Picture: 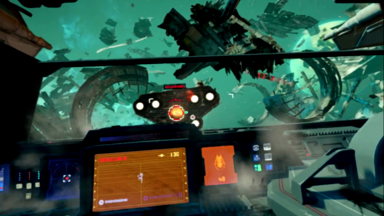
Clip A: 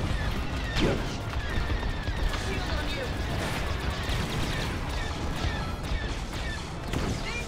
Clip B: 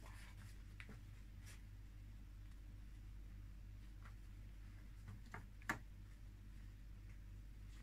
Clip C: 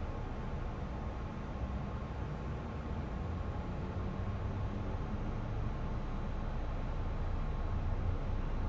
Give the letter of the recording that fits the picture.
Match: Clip A